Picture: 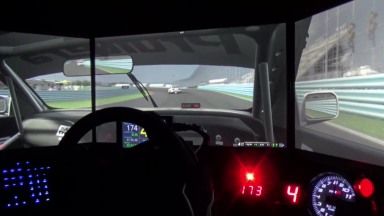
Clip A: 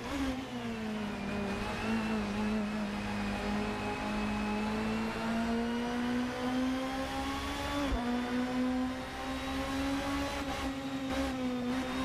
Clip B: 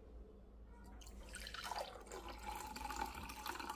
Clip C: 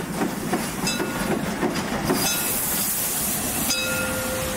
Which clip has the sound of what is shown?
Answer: A